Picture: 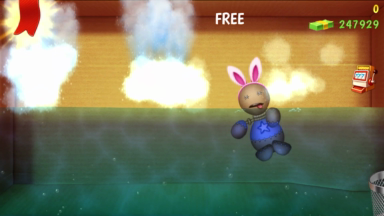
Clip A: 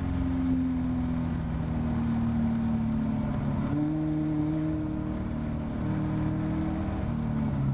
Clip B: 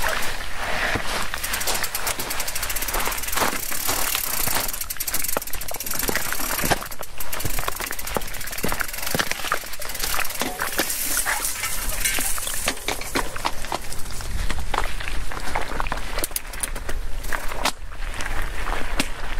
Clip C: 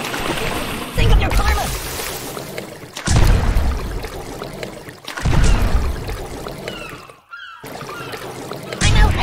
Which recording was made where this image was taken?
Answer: C